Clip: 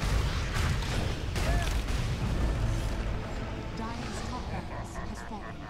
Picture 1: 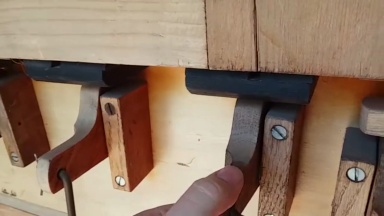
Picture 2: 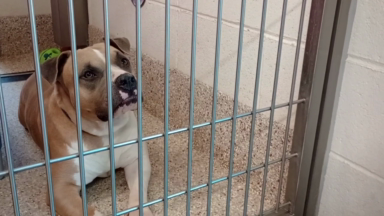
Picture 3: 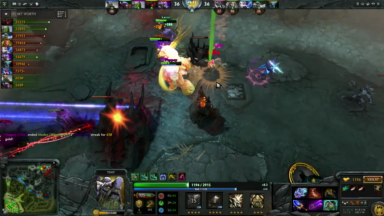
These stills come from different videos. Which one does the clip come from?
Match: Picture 3